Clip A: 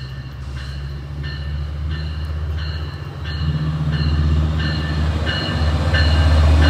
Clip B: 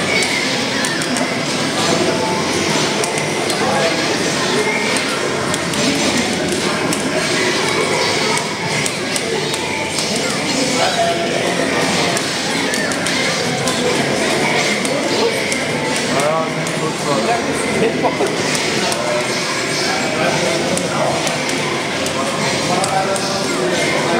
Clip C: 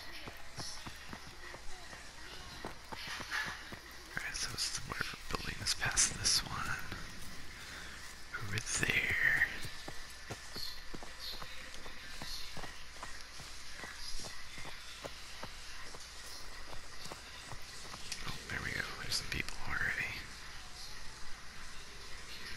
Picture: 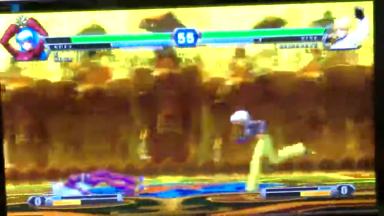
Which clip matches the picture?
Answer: B